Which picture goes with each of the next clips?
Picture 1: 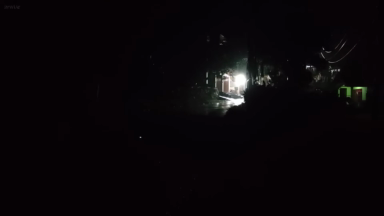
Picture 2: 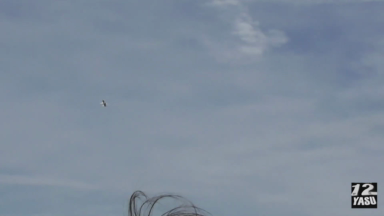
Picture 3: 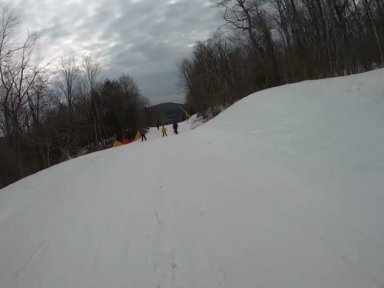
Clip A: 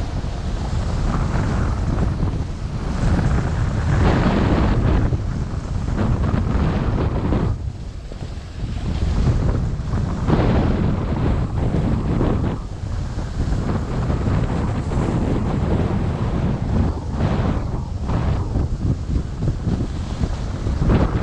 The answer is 3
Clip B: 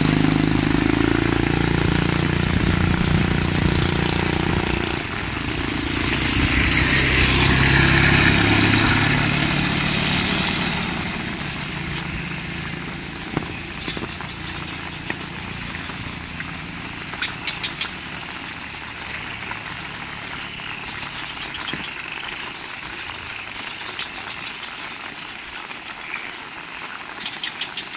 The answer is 1